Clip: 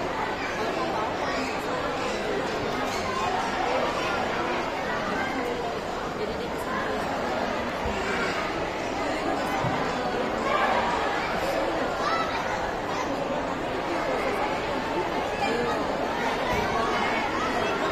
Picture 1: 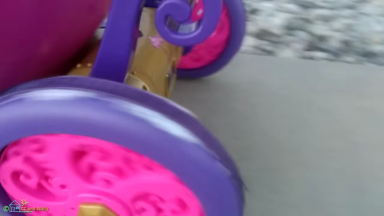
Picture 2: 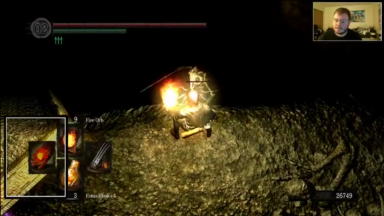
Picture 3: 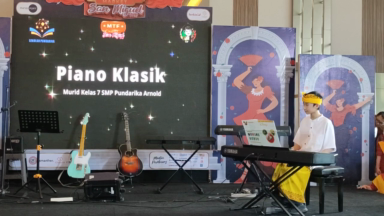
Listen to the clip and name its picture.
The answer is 3